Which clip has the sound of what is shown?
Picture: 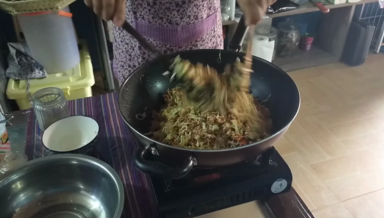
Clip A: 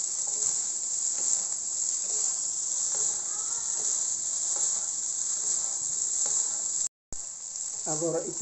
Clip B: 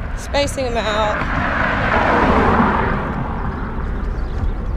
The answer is A